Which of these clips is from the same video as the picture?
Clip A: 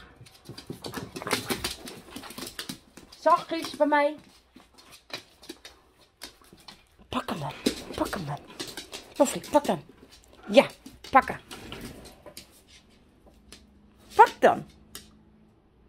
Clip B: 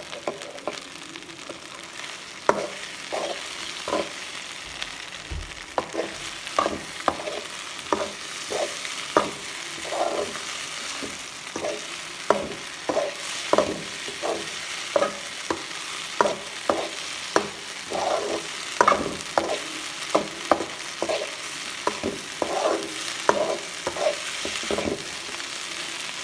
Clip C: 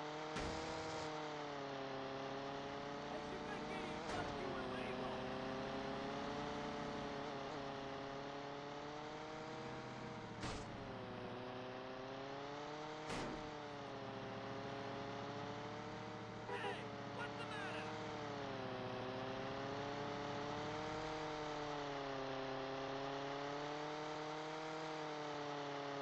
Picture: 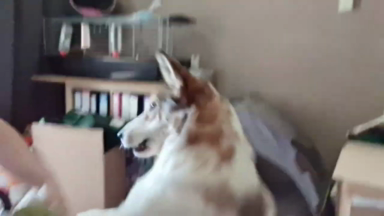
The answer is A